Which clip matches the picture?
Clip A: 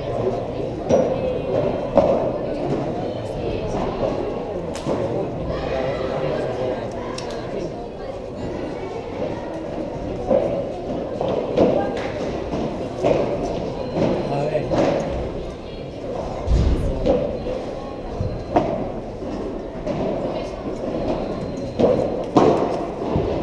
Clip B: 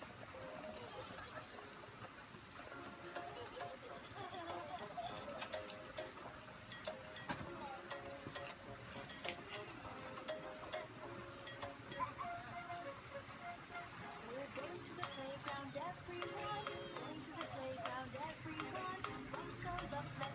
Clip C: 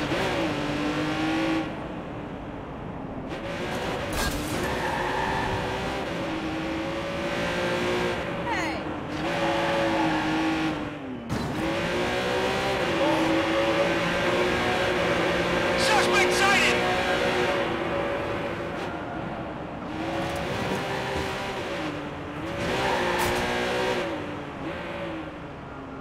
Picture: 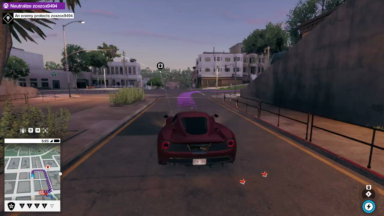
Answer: C